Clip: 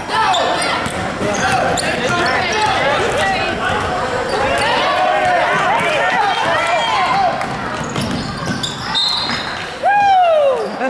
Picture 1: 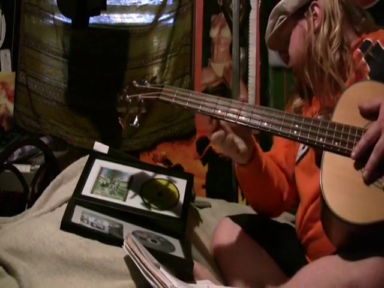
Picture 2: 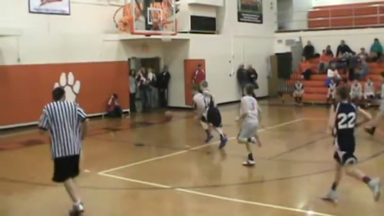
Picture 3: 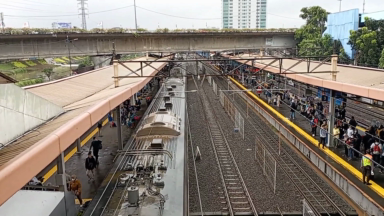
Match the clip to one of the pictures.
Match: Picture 2